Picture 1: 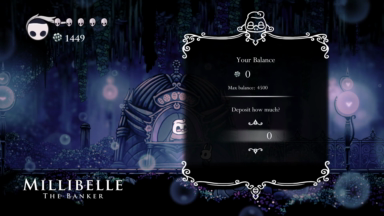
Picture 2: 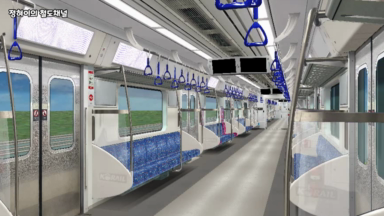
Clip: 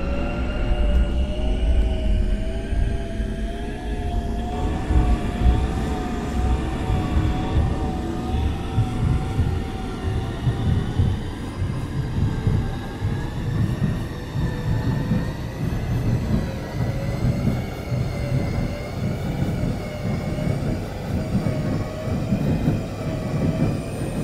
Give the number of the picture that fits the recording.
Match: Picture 2